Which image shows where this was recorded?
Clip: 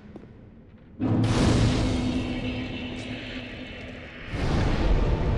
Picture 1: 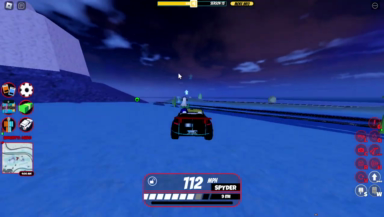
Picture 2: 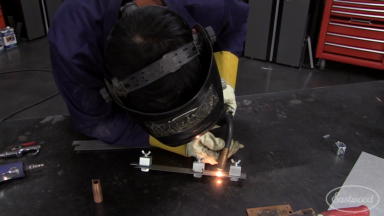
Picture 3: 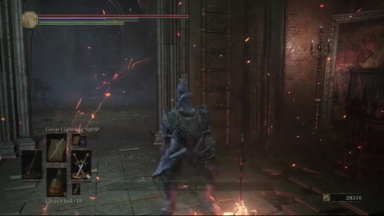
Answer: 3